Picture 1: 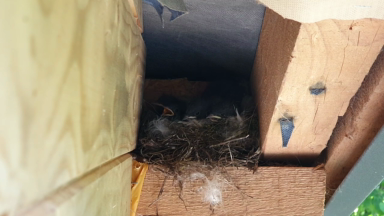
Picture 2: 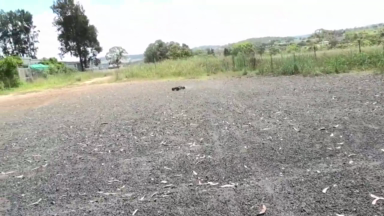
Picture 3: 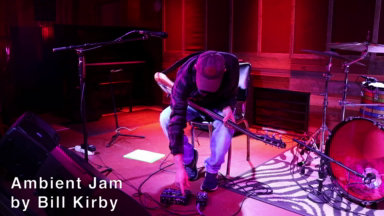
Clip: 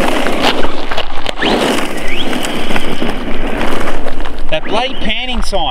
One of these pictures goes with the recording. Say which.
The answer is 2